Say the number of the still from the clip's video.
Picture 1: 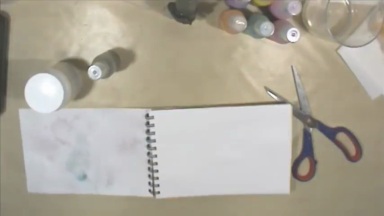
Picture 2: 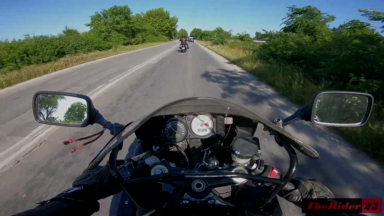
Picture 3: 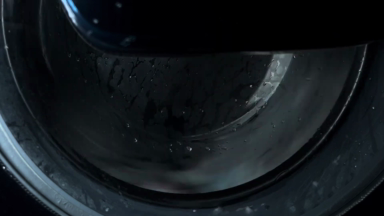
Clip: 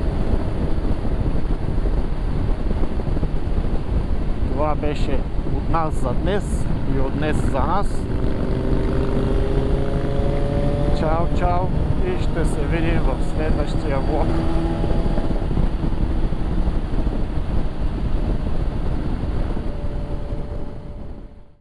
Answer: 2